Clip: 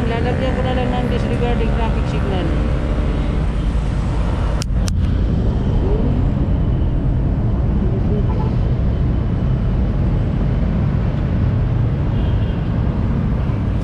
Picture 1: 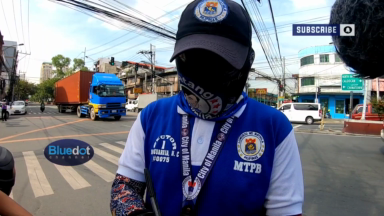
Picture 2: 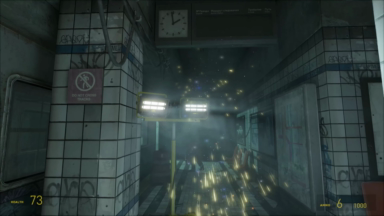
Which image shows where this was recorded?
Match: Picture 1